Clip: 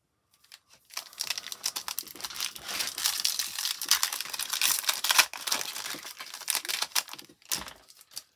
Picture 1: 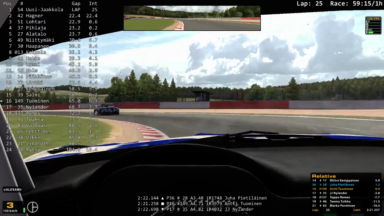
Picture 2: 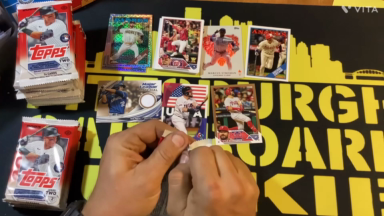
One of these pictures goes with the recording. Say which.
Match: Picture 2